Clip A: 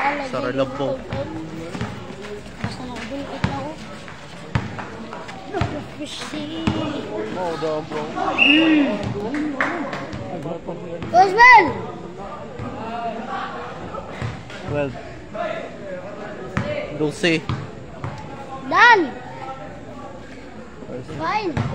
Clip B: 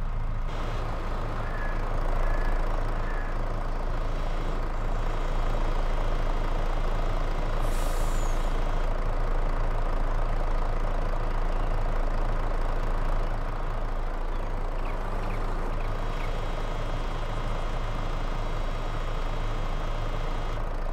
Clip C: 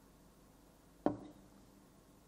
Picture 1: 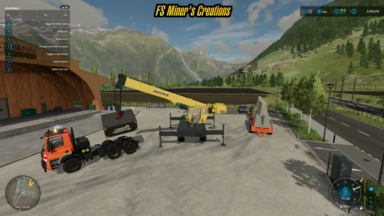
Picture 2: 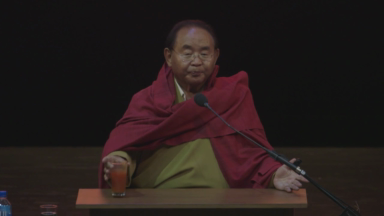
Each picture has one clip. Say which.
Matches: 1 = B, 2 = C